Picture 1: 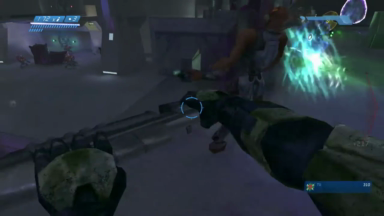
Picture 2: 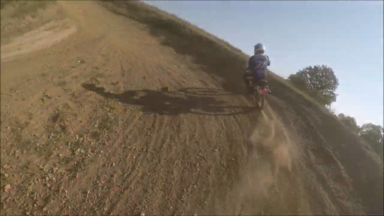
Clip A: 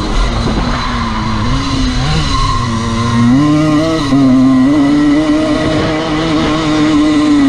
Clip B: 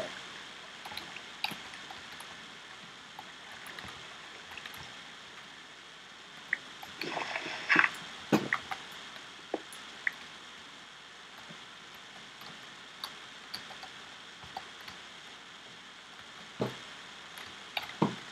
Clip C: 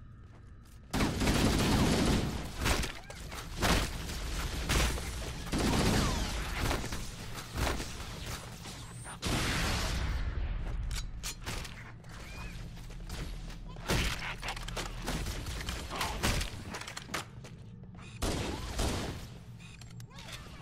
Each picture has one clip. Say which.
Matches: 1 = C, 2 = A